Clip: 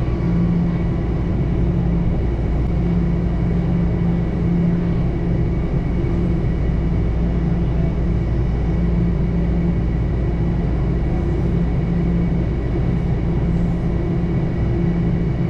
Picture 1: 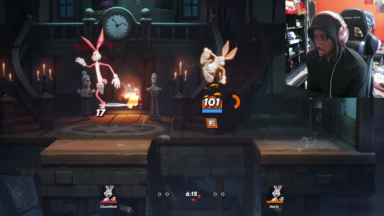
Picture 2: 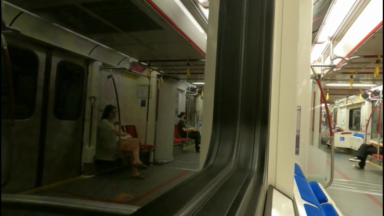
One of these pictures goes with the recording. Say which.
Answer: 2